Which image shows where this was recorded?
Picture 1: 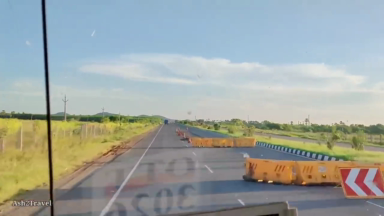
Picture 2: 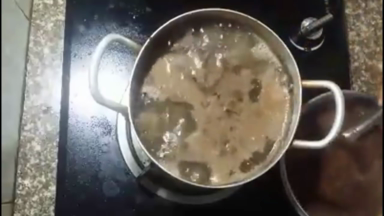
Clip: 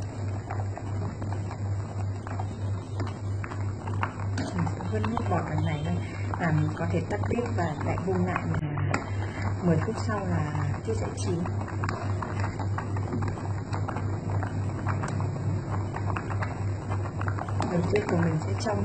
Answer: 2